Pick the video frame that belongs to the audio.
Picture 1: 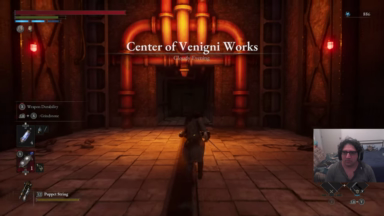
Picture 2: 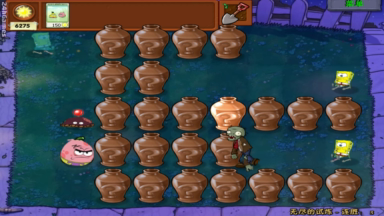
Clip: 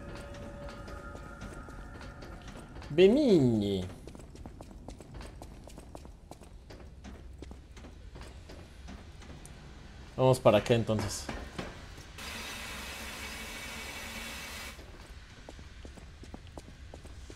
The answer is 1